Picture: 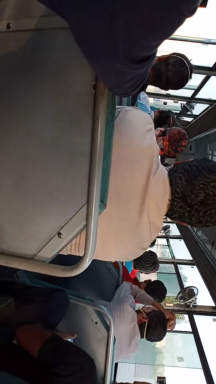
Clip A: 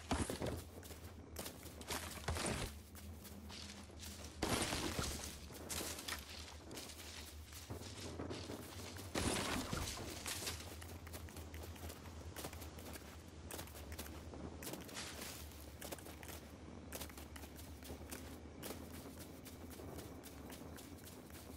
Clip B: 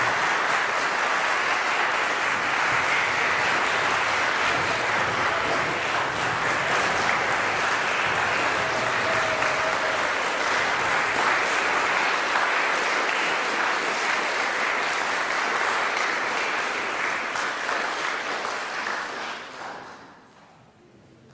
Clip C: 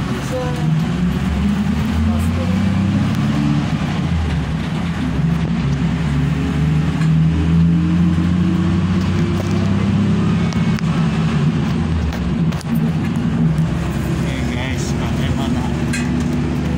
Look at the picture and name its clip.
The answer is C